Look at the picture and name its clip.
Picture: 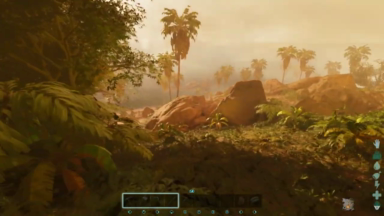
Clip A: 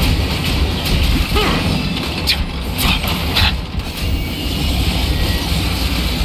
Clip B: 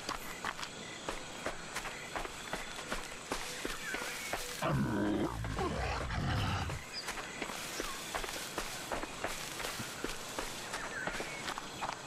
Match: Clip B